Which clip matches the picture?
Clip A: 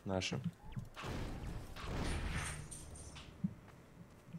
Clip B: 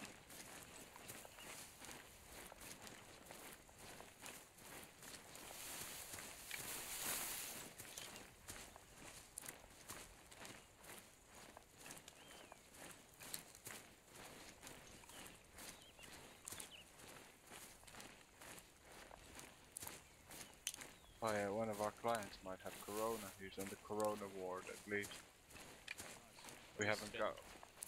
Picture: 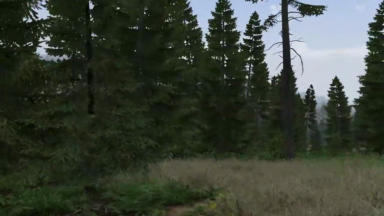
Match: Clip B